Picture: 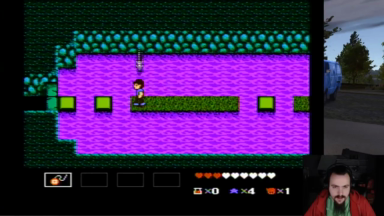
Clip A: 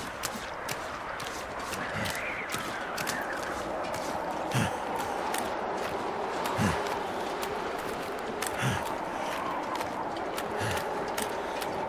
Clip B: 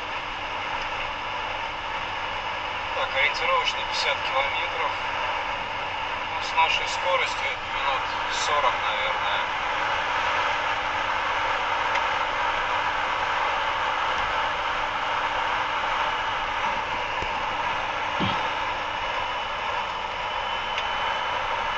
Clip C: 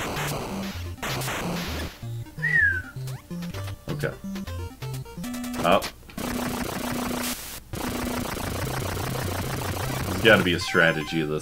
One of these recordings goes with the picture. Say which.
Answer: C